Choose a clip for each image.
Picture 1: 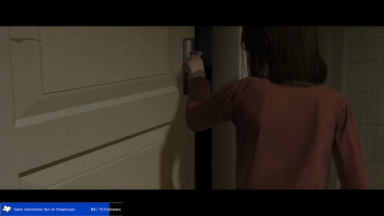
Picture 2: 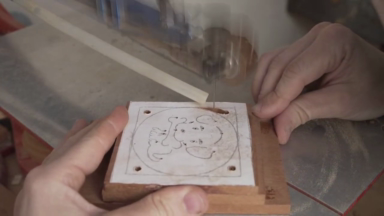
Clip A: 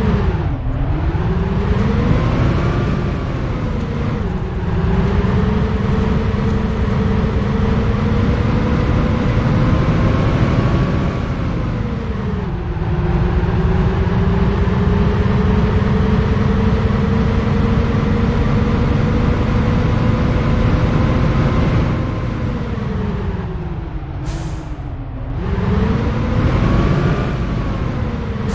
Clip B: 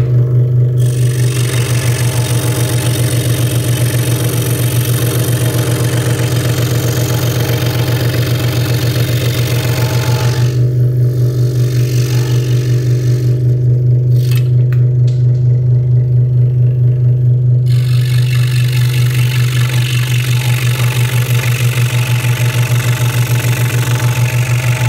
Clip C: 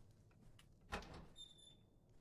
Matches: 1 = C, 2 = B